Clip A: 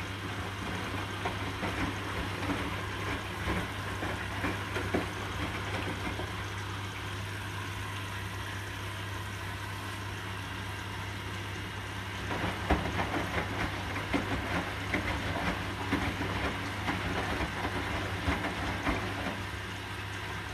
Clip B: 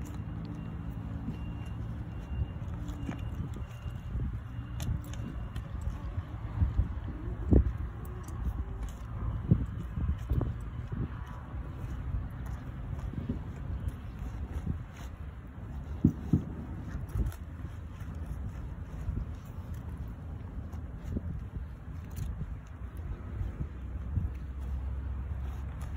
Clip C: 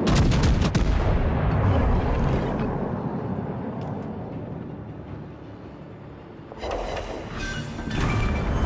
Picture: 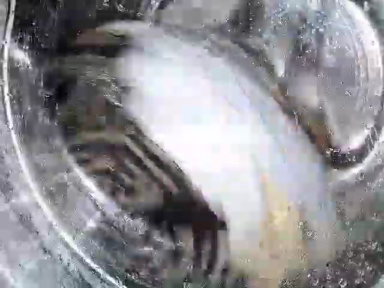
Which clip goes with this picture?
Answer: A